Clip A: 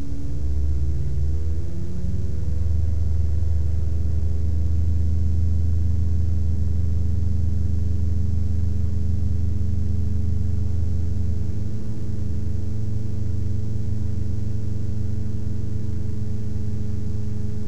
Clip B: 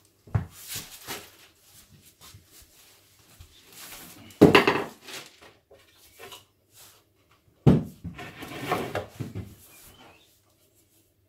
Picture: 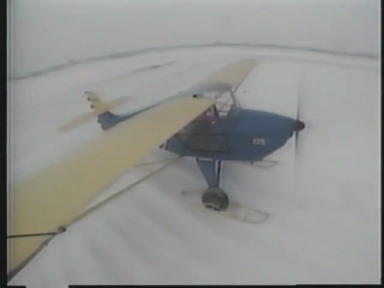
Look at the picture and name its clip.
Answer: A